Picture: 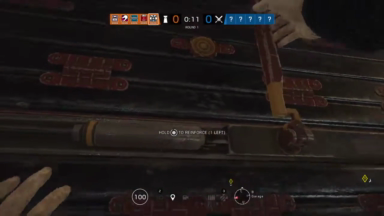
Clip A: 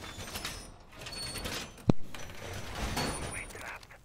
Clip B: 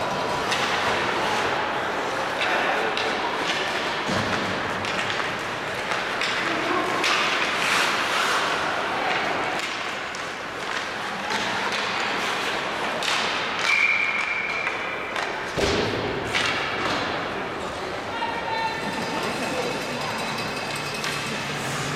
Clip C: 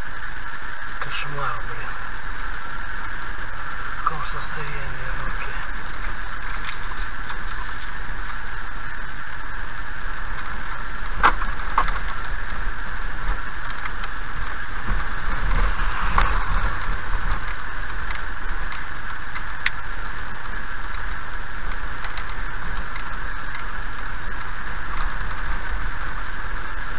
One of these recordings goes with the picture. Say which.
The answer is A